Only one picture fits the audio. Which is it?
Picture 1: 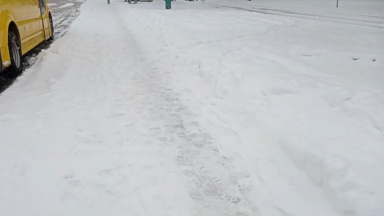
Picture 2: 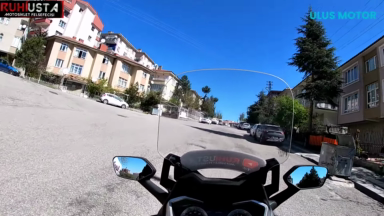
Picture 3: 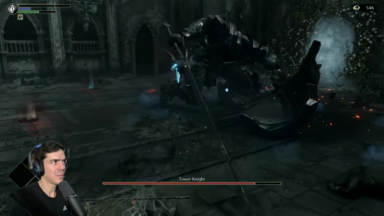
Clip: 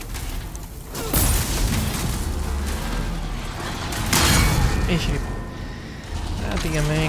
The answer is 3